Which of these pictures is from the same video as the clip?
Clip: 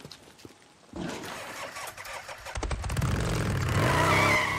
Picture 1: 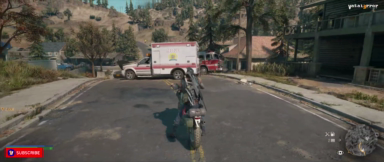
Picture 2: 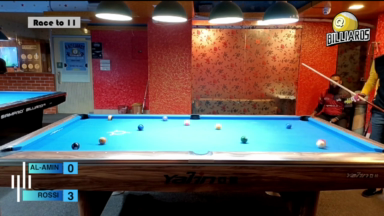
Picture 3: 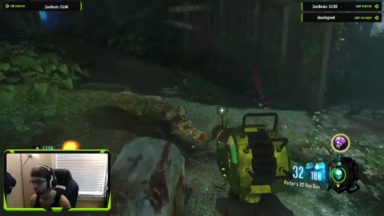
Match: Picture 1